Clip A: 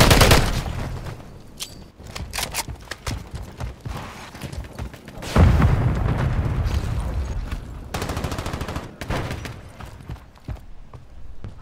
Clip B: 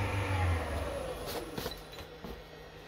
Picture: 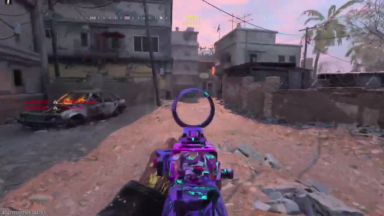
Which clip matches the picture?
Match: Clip A